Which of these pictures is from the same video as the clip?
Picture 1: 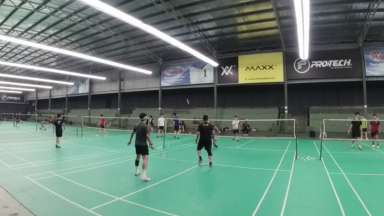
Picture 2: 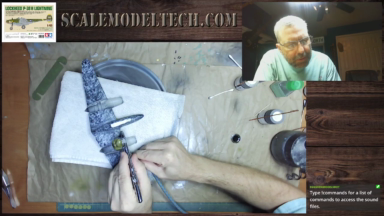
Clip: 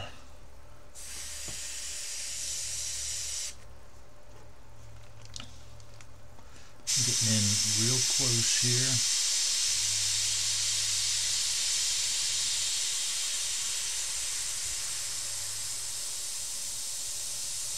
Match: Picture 2